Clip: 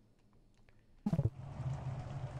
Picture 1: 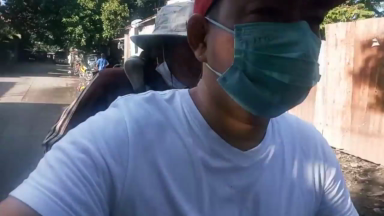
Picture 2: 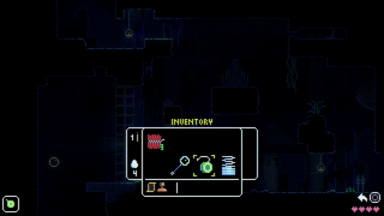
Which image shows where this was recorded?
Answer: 2